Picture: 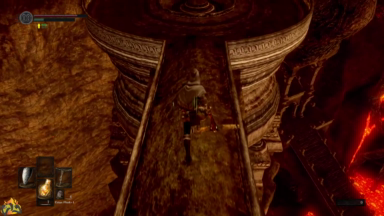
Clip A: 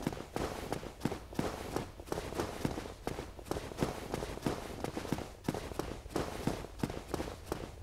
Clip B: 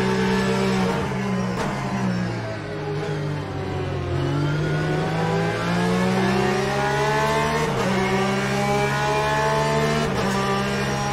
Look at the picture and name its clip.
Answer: A